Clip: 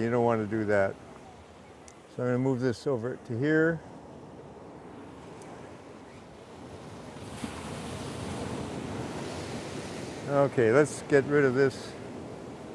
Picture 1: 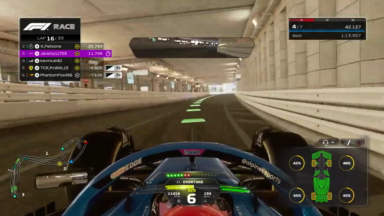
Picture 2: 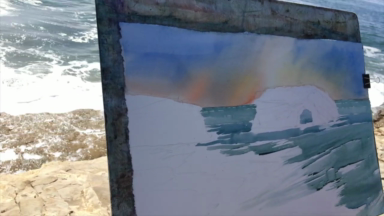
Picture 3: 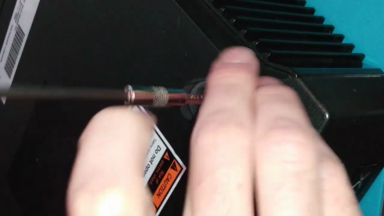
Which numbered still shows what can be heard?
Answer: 2